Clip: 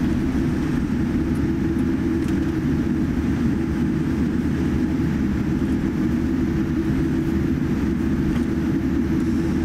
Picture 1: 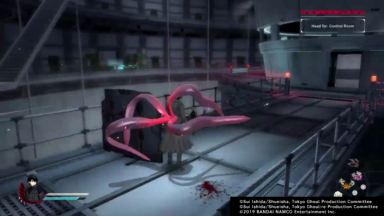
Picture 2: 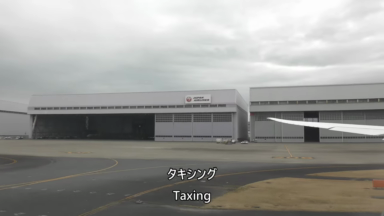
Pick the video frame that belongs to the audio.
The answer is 2